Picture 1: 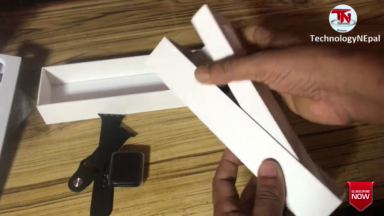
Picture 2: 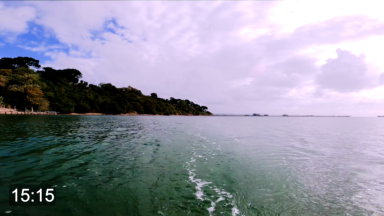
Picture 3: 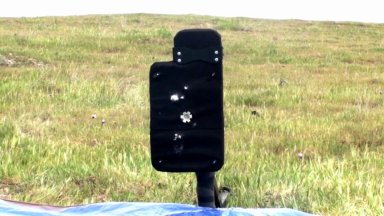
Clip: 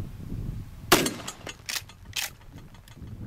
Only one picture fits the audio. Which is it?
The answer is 3